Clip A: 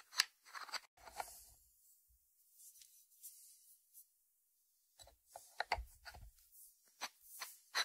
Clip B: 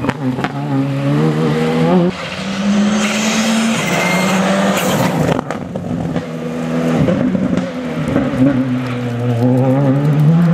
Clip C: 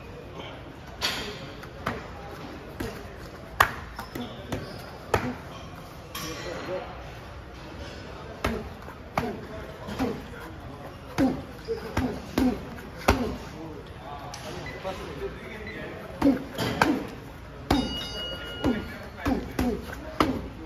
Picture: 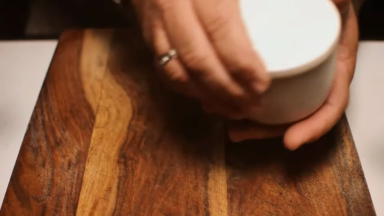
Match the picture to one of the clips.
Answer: A